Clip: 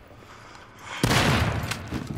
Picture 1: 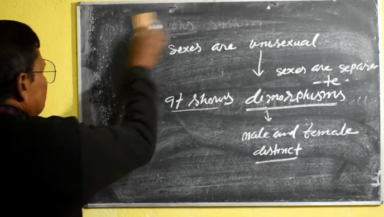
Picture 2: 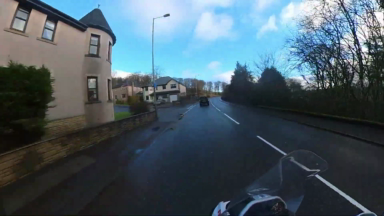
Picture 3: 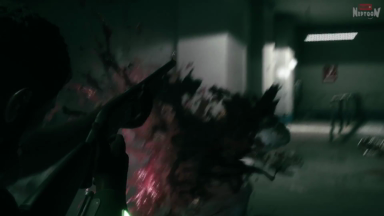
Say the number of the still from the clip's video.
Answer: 3